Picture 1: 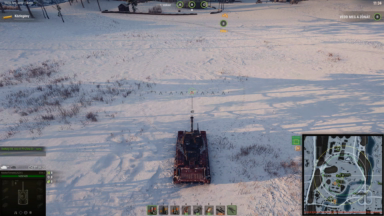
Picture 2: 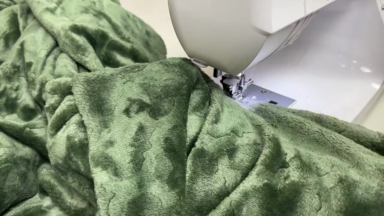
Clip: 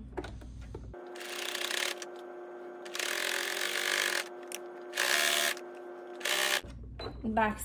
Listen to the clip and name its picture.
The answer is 2